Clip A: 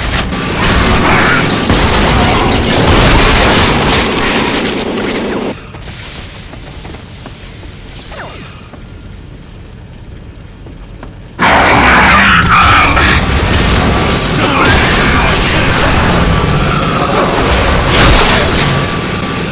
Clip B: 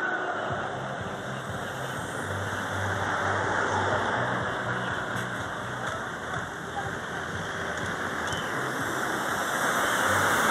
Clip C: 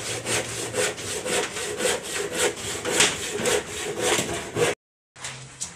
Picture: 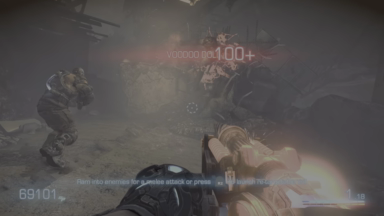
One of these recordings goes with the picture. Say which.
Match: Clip A